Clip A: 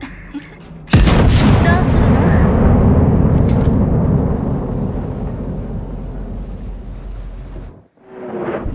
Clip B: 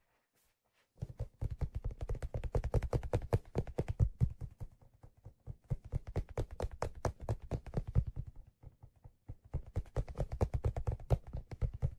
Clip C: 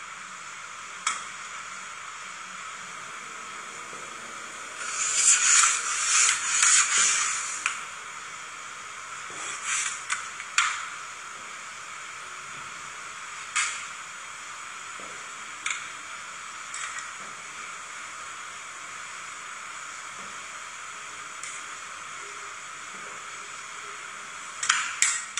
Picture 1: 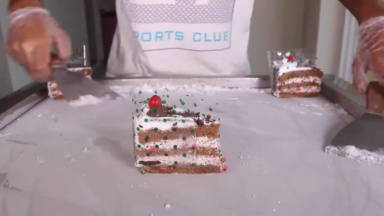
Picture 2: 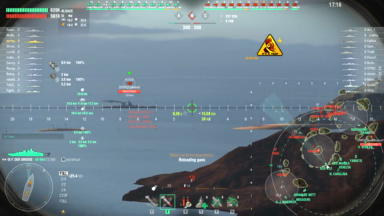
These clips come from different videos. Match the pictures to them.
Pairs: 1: C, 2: A